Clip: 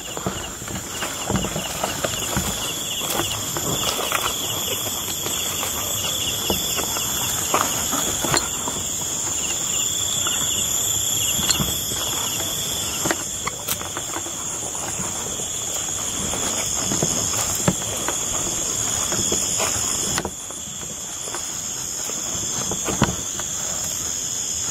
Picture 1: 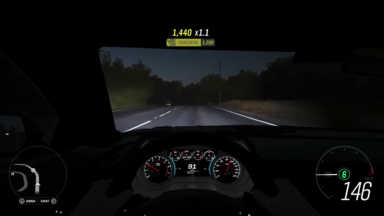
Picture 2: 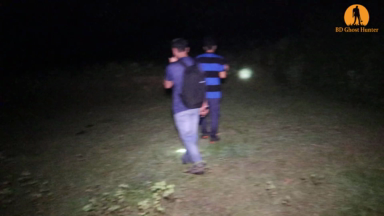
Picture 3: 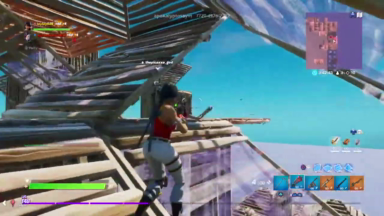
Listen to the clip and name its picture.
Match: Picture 2